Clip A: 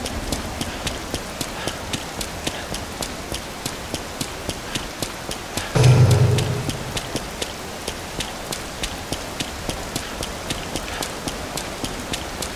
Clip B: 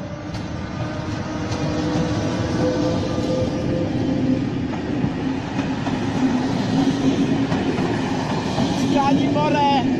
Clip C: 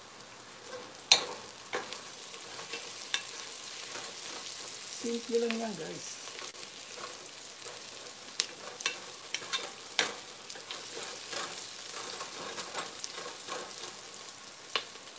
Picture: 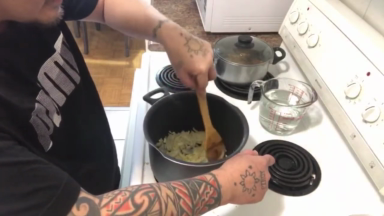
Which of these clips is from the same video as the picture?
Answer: C